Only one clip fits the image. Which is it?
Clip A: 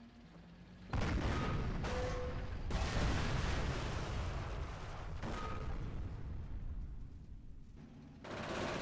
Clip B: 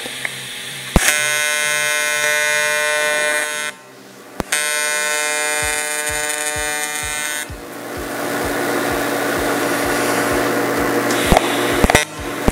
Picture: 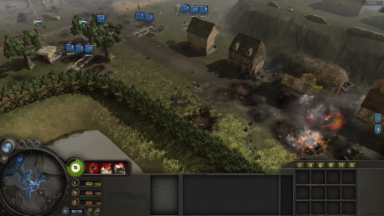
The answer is A